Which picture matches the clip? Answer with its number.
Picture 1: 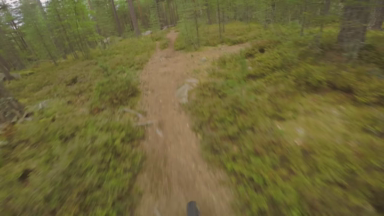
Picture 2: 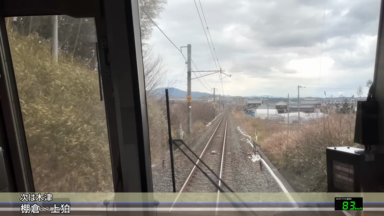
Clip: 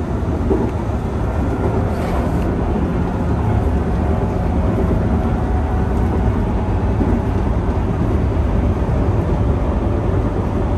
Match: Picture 2